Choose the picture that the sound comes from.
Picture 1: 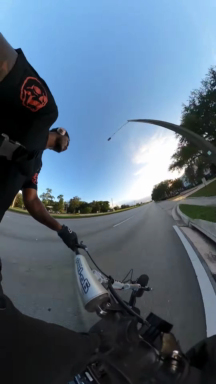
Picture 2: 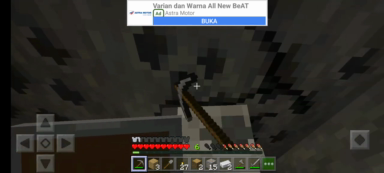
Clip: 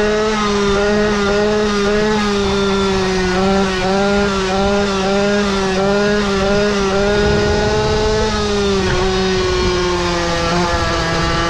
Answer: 1